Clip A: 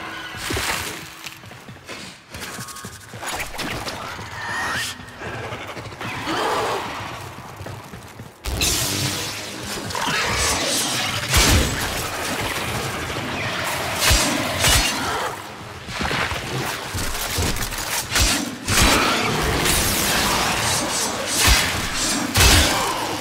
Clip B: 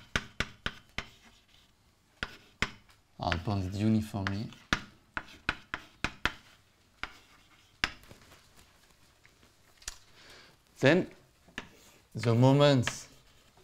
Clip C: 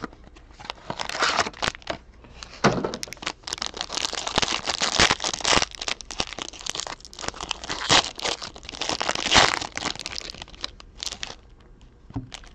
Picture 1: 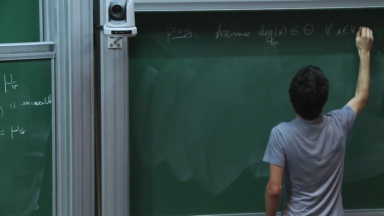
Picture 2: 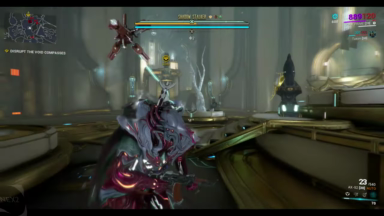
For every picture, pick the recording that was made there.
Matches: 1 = B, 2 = A